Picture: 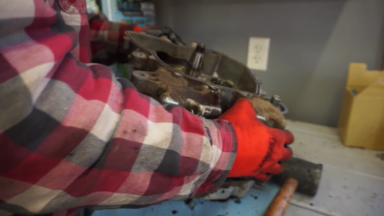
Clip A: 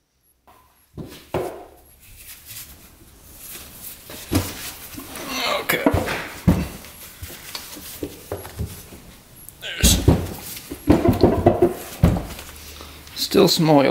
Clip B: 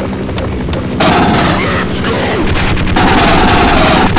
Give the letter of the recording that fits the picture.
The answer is A